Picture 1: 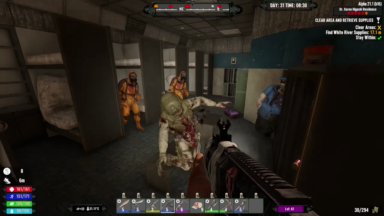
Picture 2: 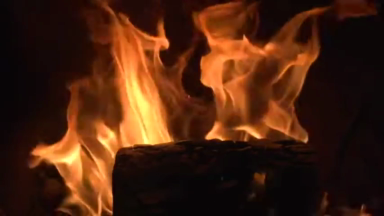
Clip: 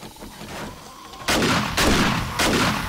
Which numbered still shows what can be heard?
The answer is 1